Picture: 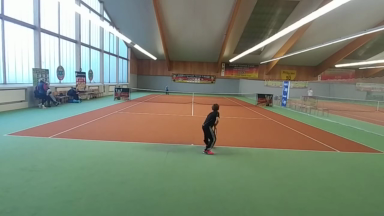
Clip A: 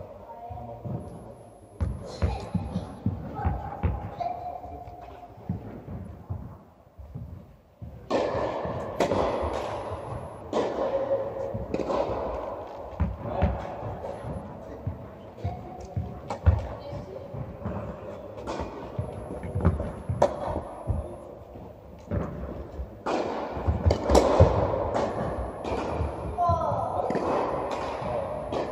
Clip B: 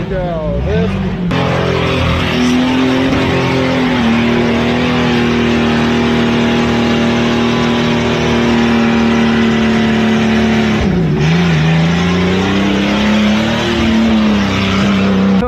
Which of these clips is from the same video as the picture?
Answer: A